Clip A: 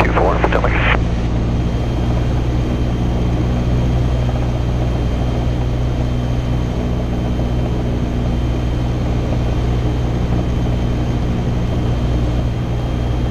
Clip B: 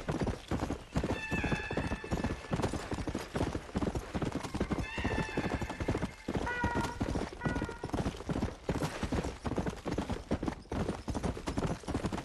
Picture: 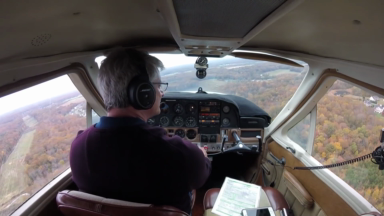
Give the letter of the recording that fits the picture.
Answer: A